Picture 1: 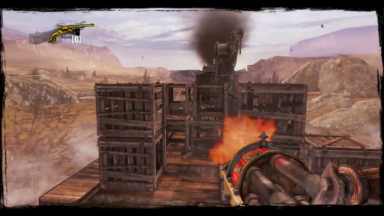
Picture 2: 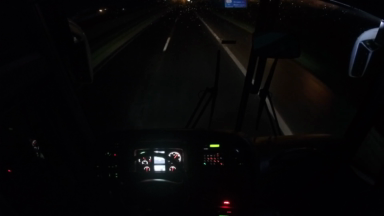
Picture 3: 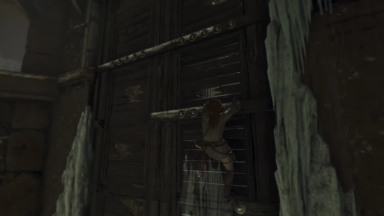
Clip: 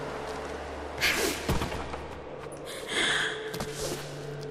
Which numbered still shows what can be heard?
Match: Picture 3